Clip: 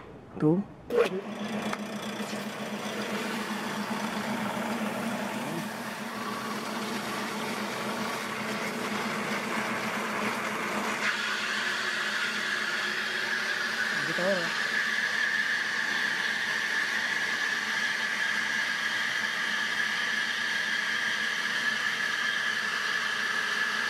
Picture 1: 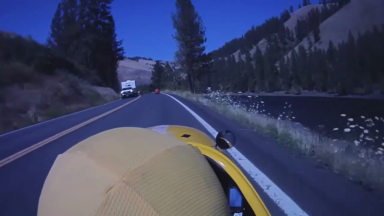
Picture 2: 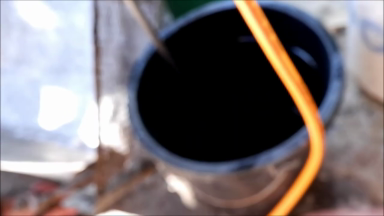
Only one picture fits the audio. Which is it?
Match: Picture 2